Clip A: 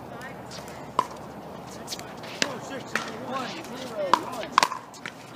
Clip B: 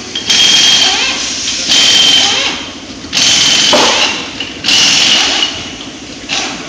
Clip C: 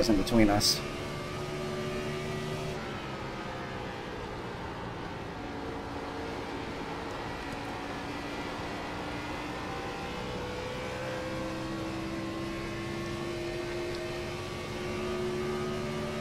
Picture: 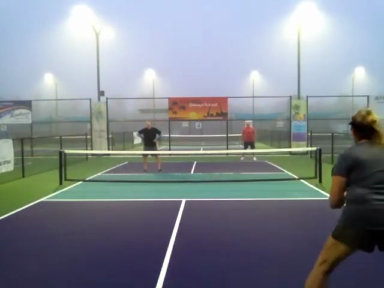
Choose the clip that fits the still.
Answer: A